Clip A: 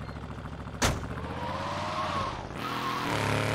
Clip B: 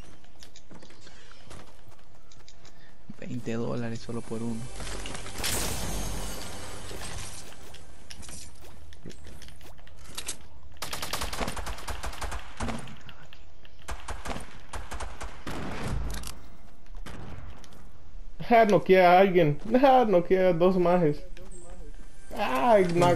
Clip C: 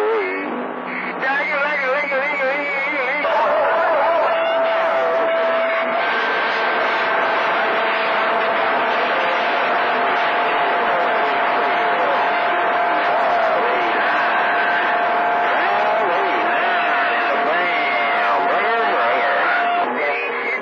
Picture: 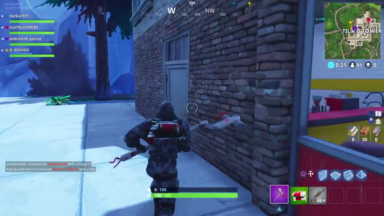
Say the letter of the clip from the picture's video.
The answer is B